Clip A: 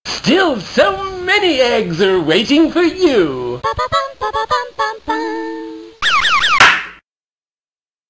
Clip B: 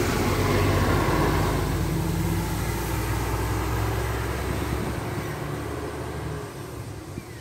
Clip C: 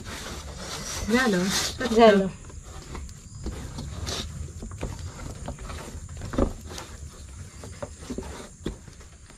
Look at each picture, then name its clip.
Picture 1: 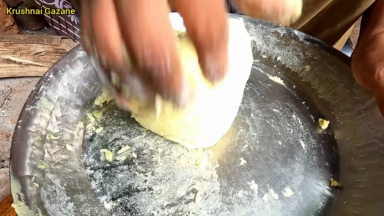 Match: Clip C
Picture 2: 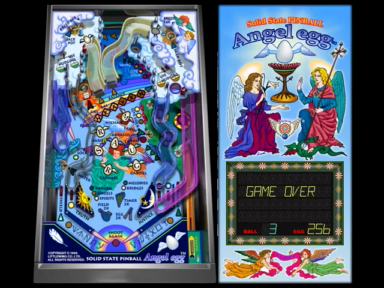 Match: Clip A